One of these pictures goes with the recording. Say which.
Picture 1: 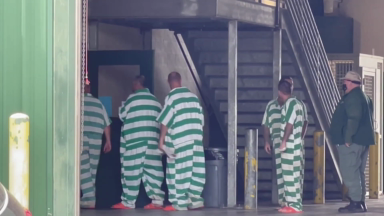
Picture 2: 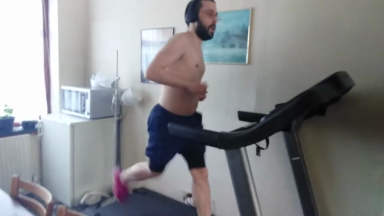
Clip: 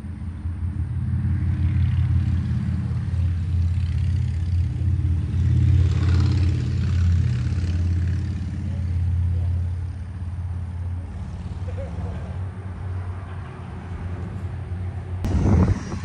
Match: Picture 1